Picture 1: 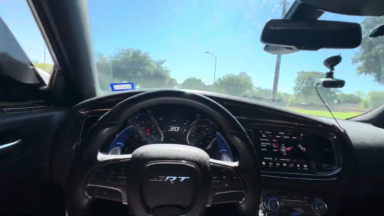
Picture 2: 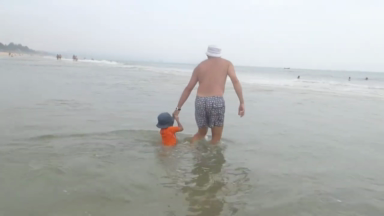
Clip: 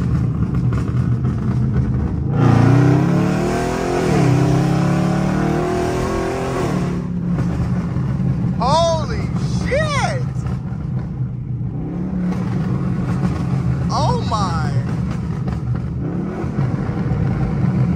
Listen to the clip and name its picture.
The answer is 1